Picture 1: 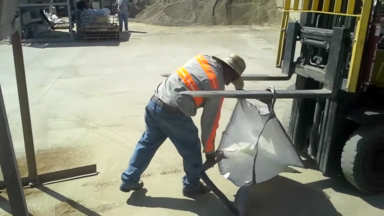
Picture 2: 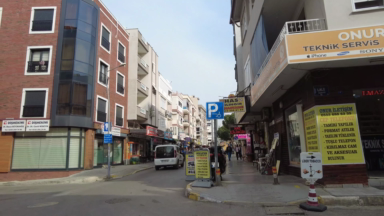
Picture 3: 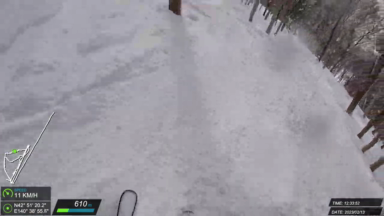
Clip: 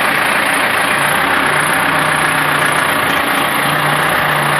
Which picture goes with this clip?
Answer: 1